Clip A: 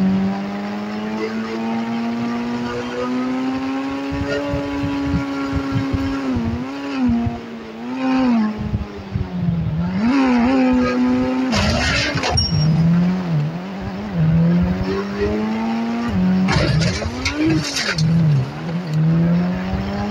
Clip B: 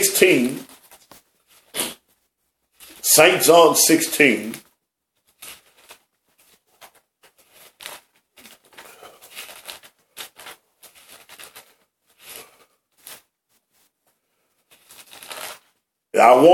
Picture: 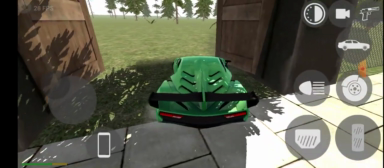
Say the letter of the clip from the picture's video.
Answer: A